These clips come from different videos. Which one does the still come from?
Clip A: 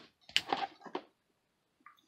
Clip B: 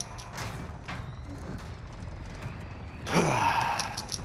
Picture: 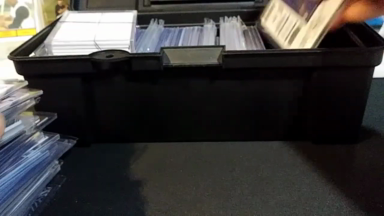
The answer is A